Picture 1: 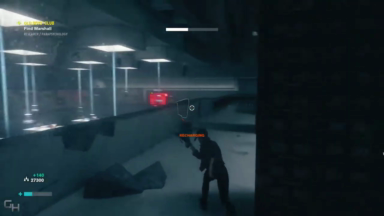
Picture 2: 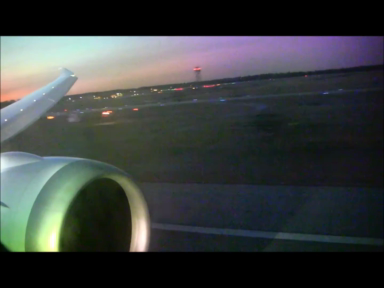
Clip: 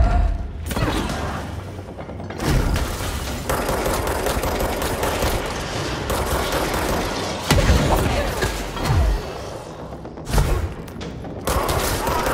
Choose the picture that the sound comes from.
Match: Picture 1